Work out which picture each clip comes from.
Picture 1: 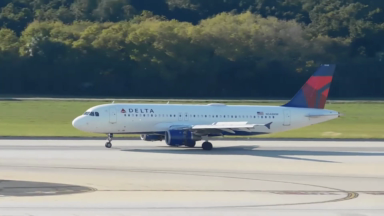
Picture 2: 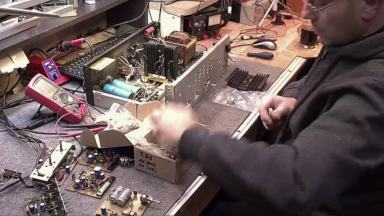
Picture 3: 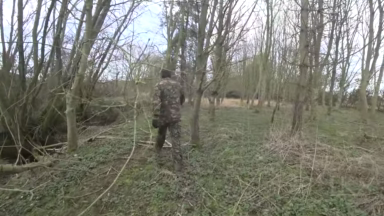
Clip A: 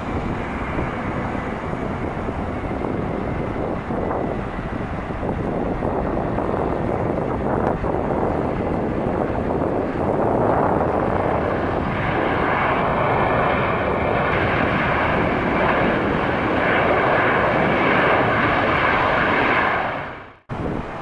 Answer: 1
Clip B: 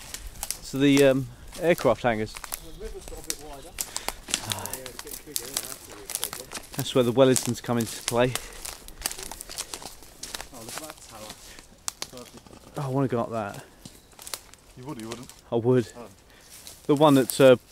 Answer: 3